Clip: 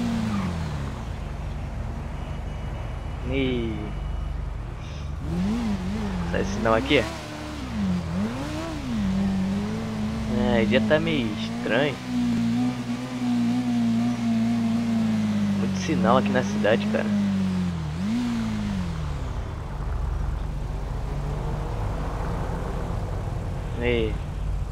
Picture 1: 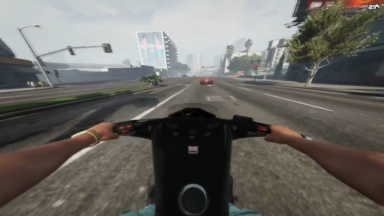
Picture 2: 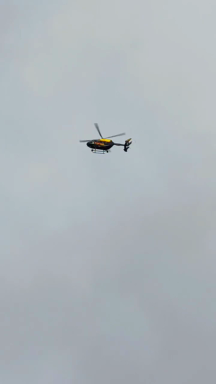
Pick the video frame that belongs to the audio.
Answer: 1